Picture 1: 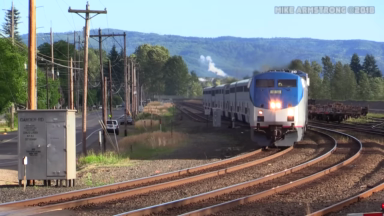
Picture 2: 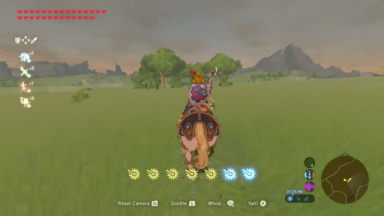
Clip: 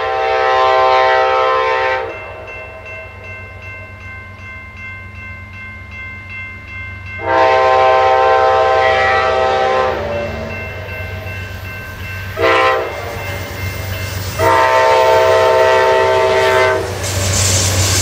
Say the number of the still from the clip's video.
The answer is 1